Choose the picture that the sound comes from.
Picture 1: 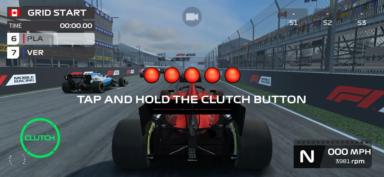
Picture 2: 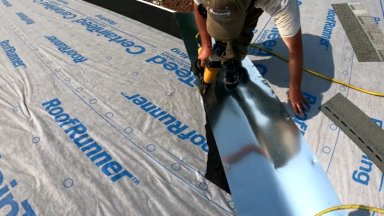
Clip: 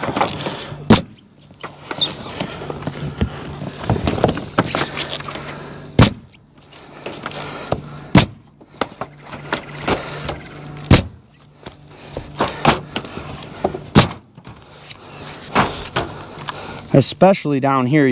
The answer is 2